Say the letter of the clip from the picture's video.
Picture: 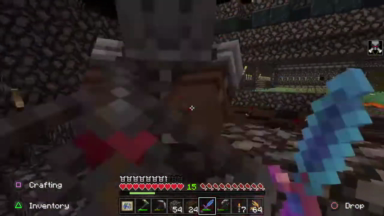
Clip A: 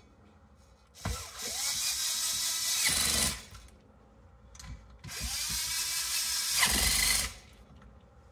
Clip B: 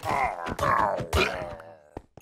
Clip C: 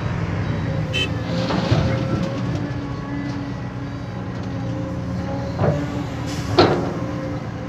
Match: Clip B